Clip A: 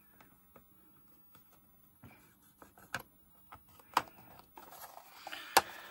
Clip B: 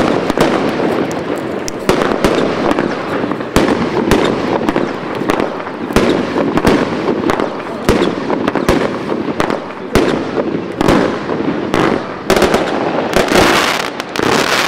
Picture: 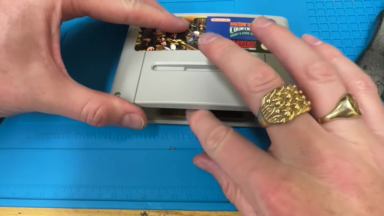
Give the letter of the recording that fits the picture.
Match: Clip A